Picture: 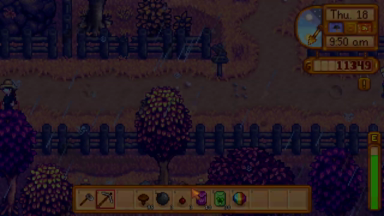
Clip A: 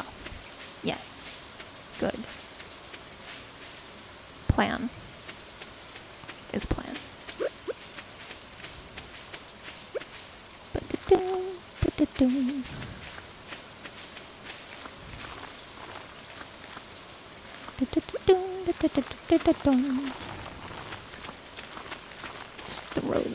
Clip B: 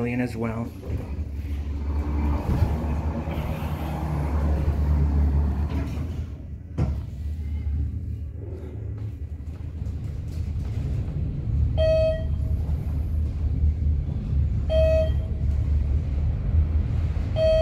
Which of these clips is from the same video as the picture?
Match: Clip A